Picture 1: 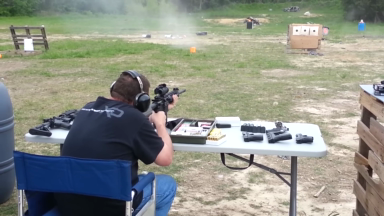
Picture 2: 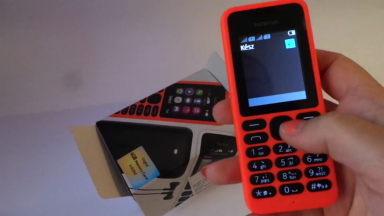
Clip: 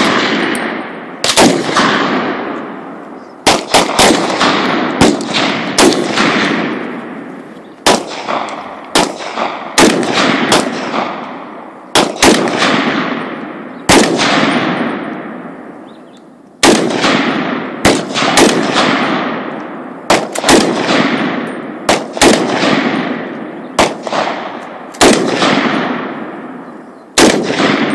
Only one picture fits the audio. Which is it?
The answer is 1